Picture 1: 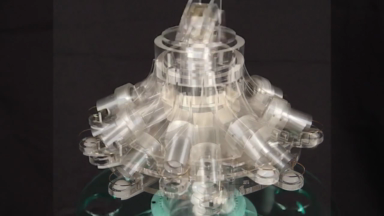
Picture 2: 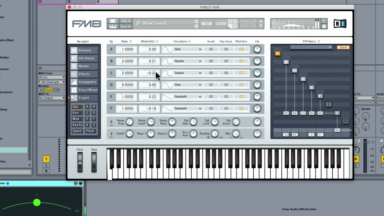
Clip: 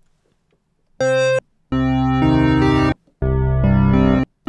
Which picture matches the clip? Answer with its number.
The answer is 2